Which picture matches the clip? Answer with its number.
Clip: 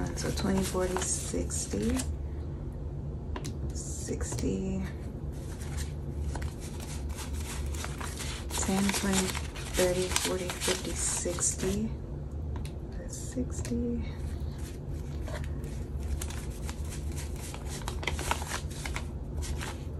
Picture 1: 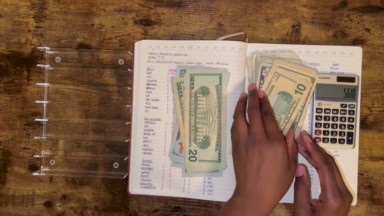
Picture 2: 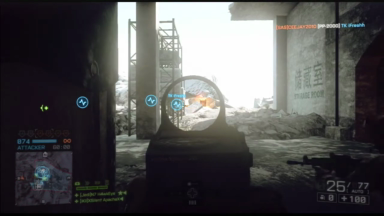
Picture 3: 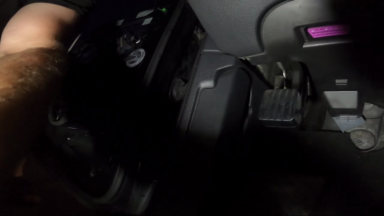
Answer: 1